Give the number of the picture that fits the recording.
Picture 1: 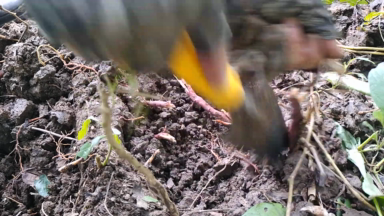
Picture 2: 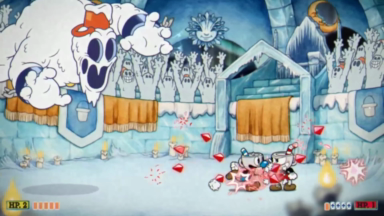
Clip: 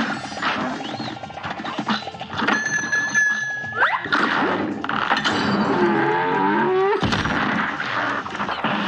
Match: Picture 2